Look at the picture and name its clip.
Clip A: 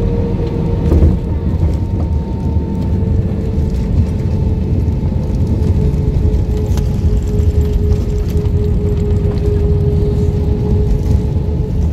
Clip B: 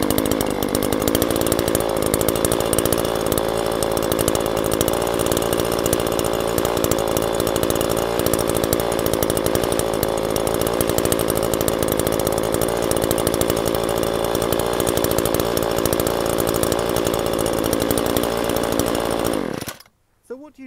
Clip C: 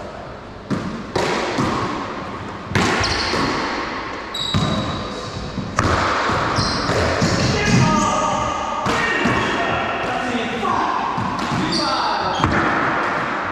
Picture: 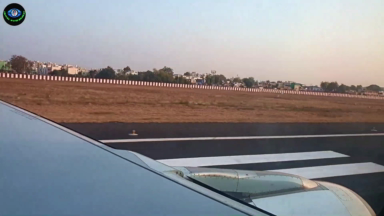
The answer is A